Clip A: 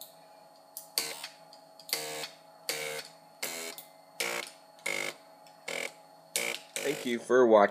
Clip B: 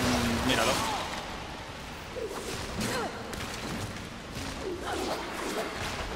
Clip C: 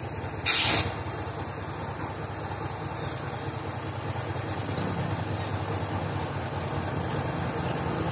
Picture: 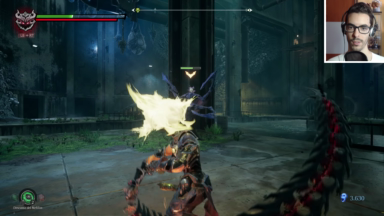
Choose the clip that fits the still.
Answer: B